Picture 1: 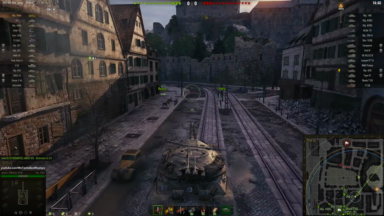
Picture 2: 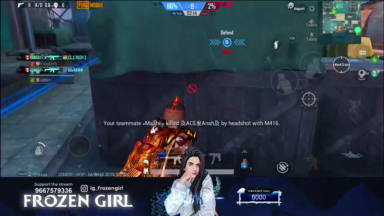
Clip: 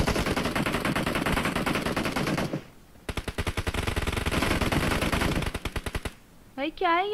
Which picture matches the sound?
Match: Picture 2